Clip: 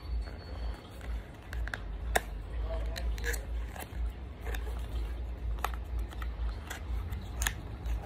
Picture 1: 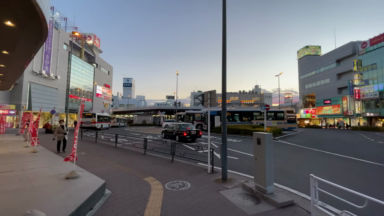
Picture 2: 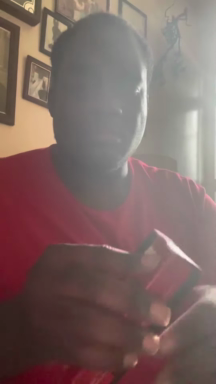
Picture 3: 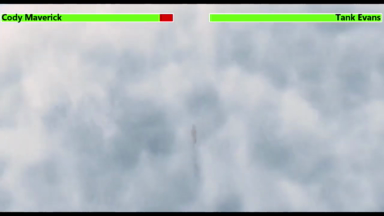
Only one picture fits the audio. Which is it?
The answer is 2